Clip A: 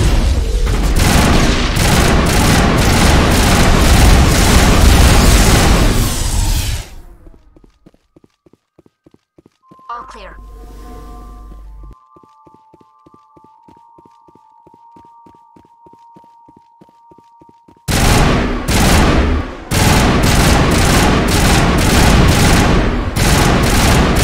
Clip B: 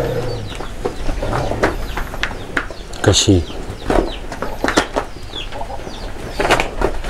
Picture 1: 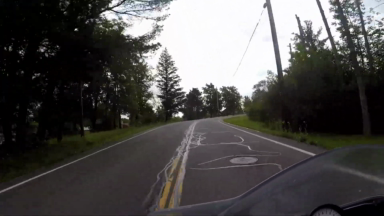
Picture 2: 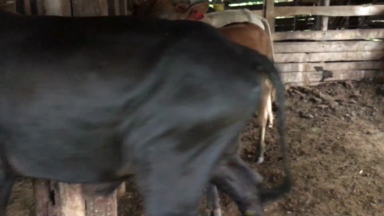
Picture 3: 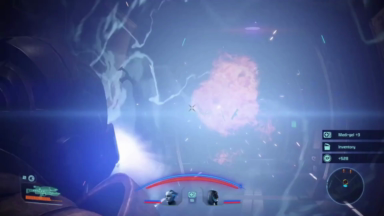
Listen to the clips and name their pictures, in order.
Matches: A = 3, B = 2